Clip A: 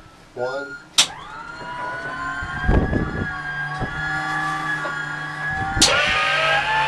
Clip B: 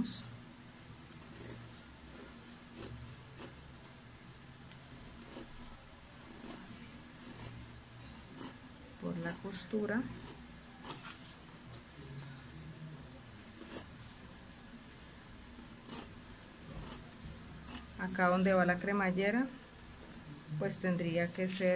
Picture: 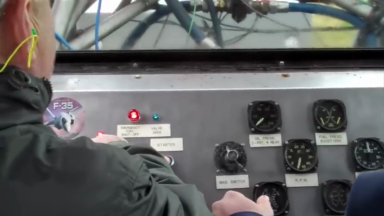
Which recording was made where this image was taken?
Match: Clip A